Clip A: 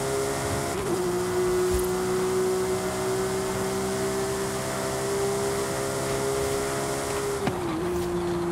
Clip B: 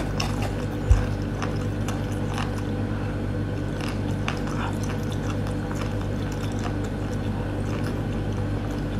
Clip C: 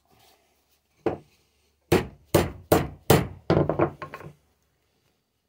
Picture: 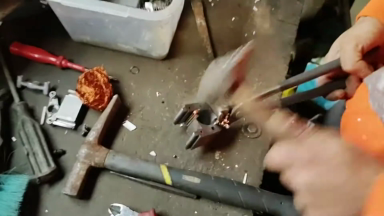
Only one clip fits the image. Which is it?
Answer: C